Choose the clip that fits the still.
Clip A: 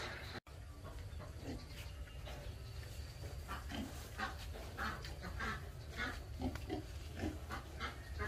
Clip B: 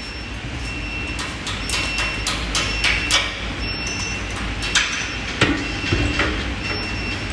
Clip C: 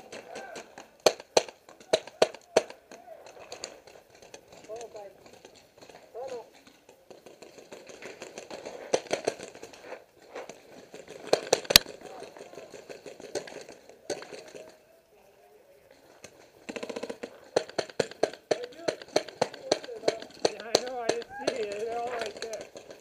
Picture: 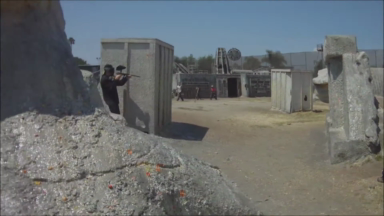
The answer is C